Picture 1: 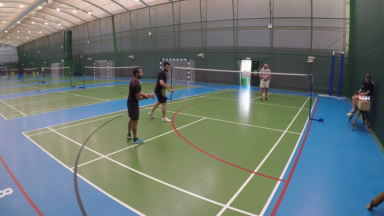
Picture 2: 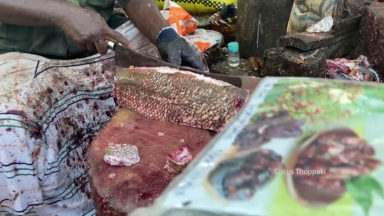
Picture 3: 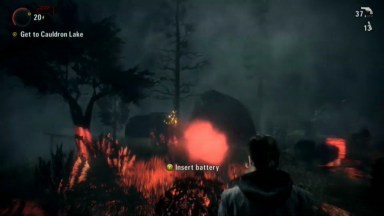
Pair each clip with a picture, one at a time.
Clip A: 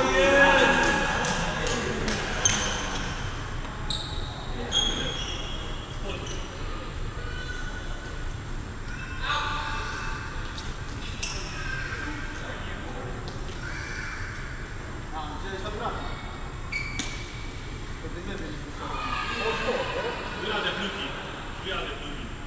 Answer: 1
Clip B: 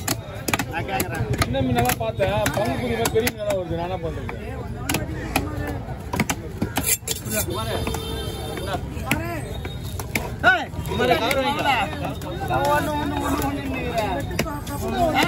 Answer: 2